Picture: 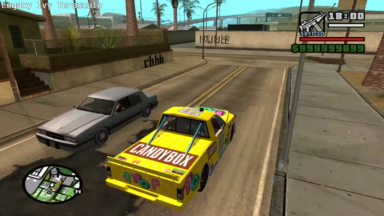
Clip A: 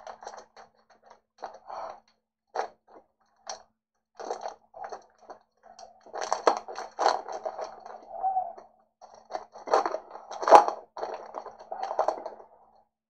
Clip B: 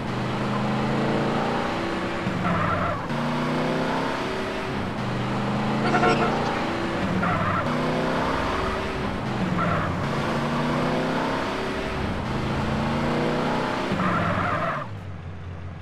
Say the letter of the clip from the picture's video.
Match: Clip B